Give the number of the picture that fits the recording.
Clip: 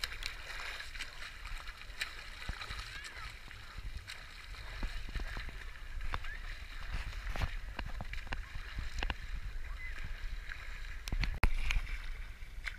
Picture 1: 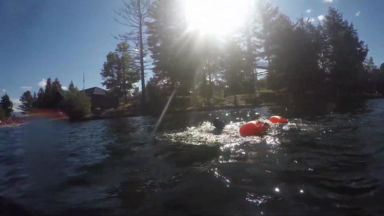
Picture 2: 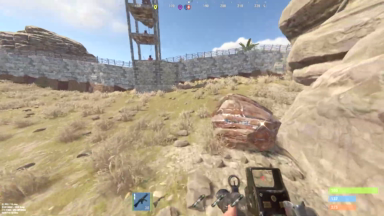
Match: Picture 1